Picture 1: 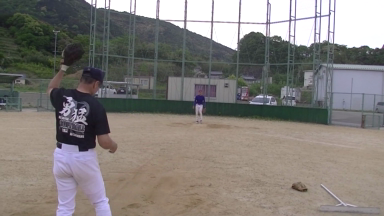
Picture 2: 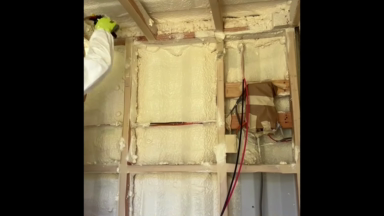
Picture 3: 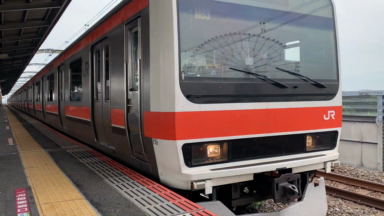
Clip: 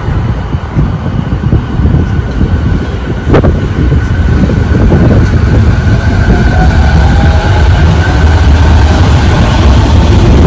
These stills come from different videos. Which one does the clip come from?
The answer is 3